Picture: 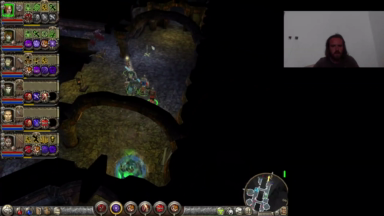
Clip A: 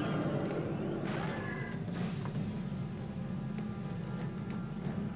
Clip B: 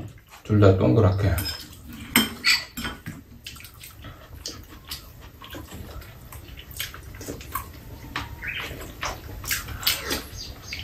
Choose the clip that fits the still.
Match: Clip A